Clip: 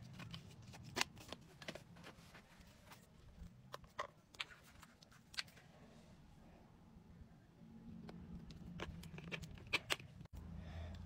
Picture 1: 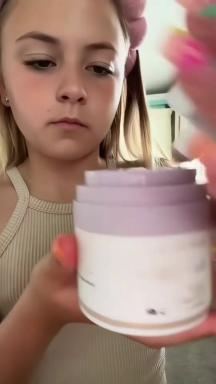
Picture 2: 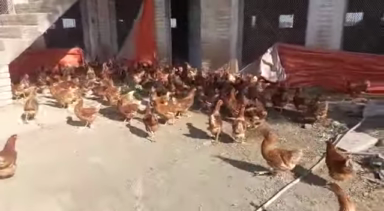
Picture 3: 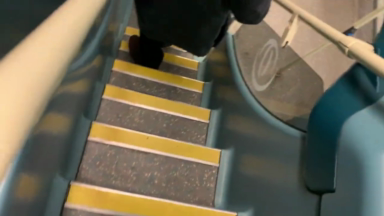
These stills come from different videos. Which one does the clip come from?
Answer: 1